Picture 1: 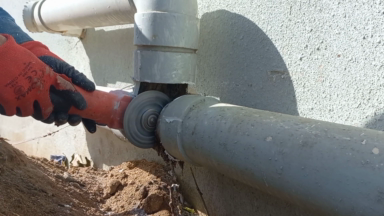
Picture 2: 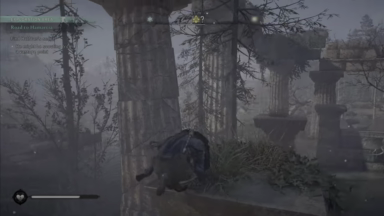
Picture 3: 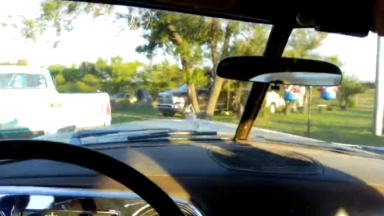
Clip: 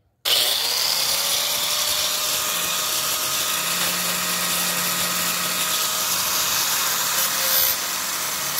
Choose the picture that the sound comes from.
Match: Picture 1